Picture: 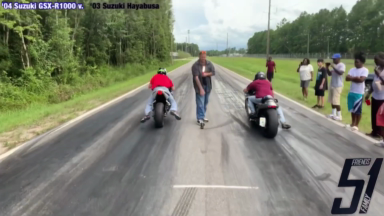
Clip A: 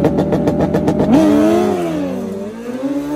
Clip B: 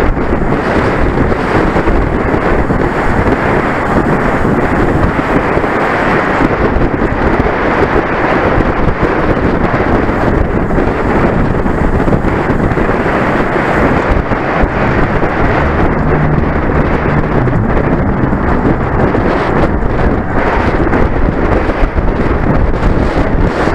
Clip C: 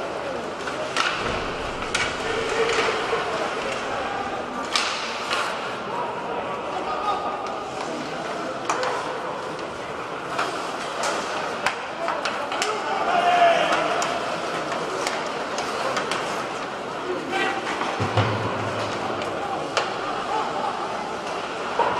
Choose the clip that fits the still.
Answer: A